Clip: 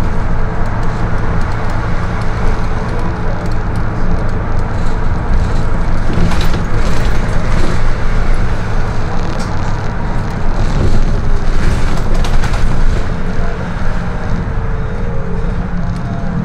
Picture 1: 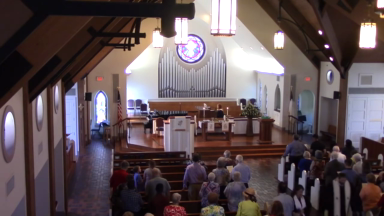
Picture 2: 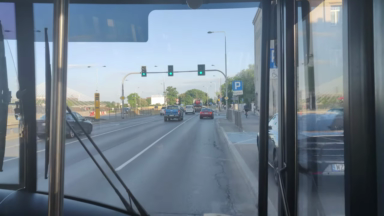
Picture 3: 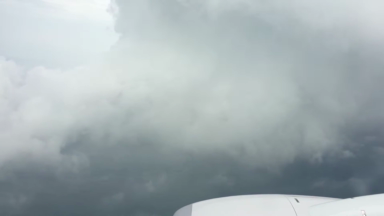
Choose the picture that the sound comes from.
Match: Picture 2